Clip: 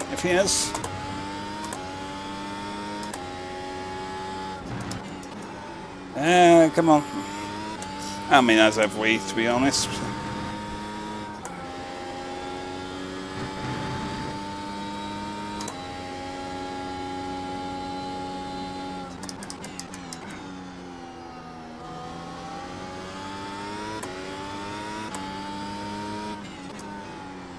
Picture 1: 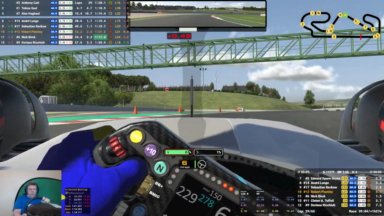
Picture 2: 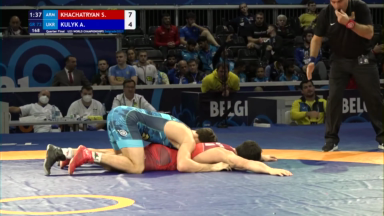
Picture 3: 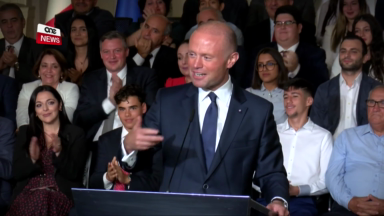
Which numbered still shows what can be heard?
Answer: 1